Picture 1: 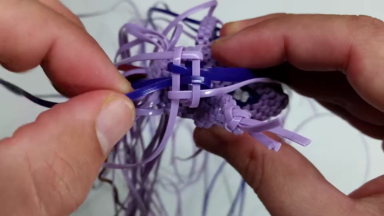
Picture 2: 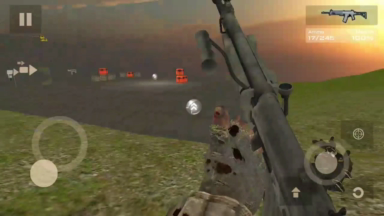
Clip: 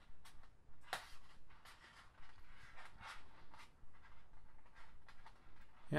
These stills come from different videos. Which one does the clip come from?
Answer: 1